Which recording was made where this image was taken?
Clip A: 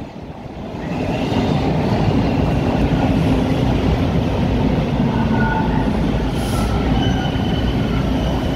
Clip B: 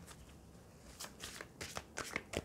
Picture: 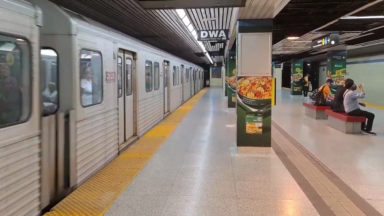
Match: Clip A